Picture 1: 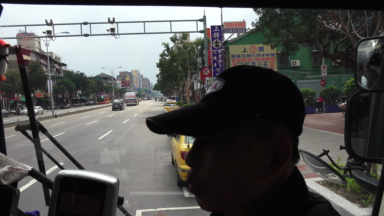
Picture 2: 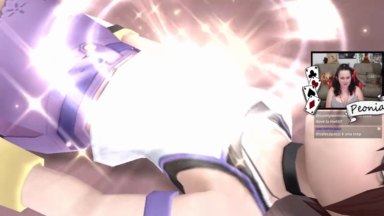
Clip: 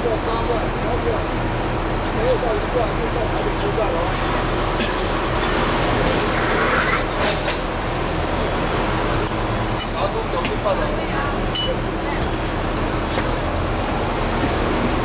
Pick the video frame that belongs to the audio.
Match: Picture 1